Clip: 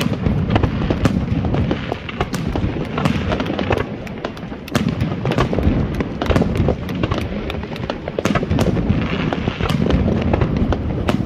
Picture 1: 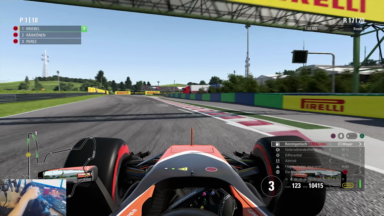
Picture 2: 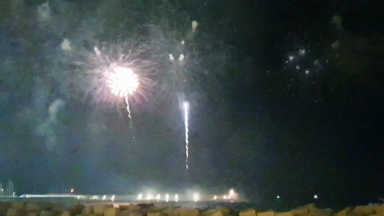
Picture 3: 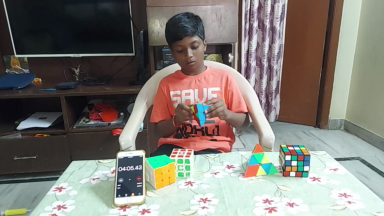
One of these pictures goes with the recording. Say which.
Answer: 2